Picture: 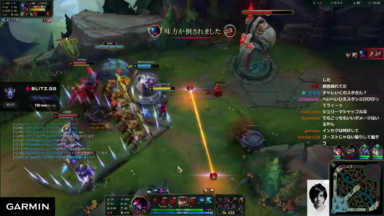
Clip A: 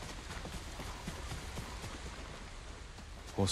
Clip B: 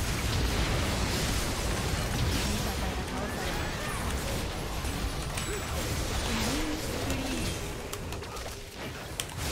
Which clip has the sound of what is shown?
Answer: B